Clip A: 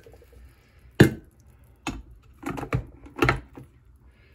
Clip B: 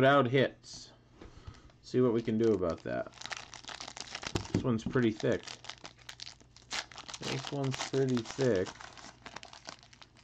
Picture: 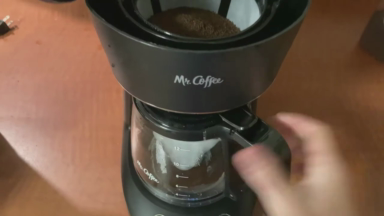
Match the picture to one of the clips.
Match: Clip A